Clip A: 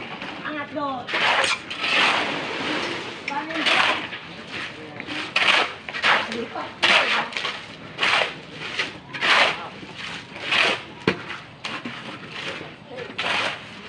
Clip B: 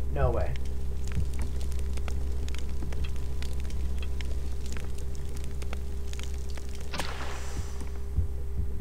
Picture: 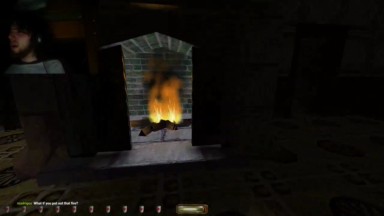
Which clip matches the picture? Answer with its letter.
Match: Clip B